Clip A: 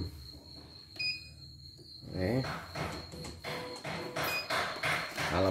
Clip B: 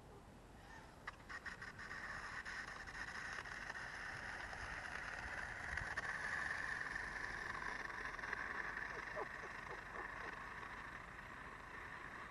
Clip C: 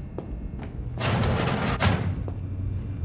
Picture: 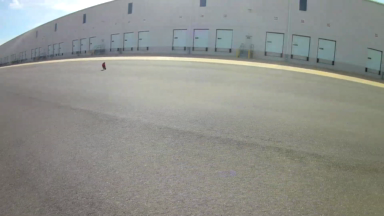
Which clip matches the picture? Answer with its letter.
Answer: B